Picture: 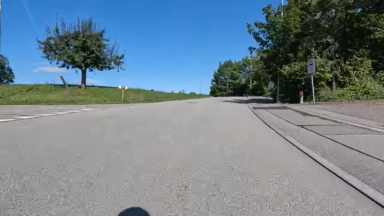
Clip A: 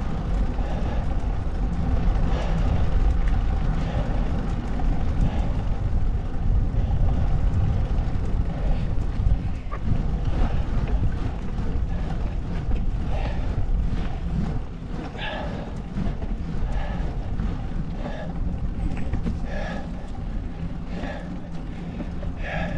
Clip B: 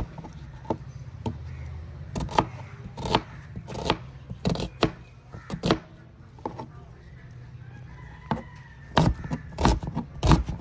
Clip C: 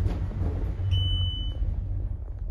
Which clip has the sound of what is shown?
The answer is A